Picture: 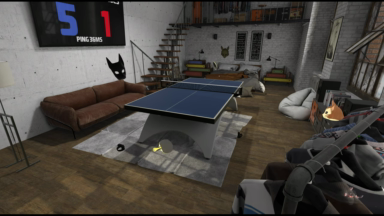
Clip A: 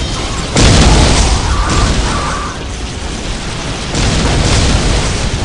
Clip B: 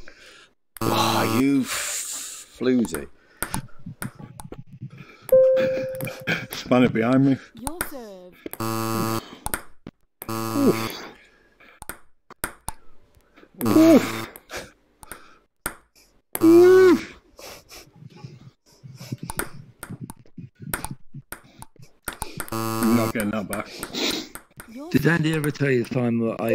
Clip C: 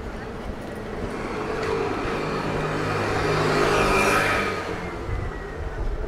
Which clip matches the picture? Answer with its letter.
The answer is B